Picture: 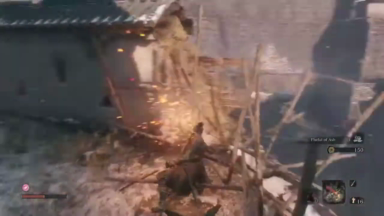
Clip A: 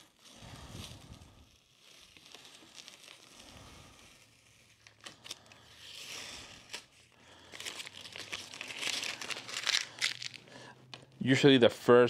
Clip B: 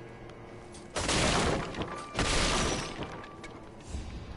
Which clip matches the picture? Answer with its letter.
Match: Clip B